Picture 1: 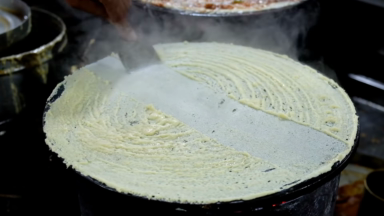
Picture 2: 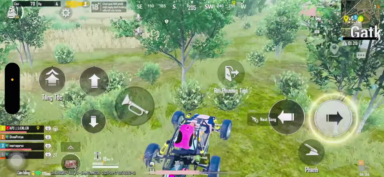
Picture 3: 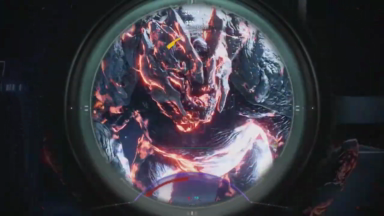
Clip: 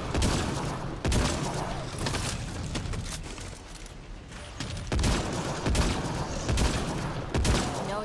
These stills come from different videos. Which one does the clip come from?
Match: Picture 3